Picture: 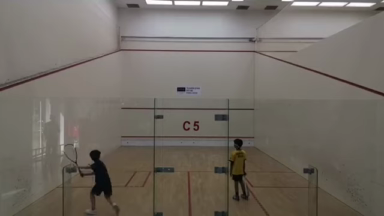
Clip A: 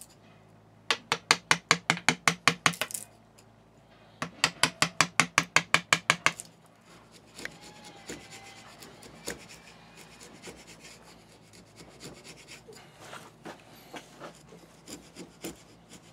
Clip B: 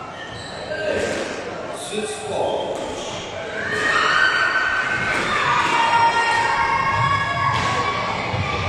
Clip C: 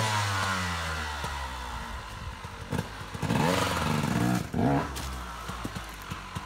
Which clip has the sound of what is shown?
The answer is B